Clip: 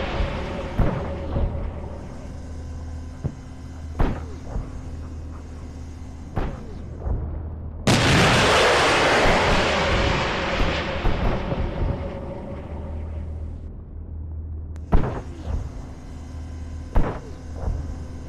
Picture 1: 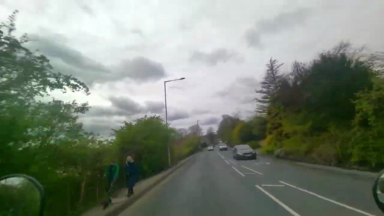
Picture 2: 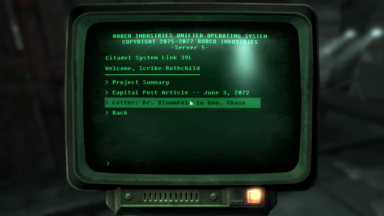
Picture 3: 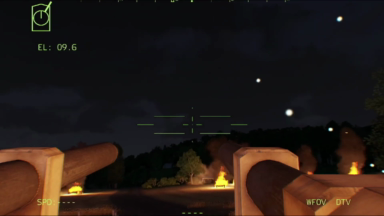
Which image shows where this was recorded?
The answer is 3